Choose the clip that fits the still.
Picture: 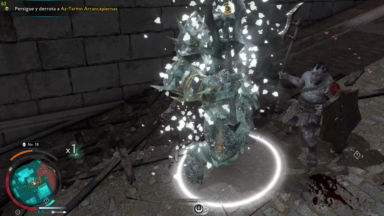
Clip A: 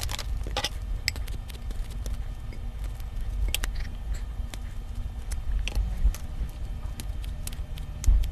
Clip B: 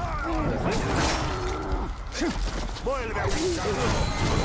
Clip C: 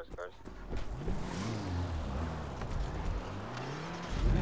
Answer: B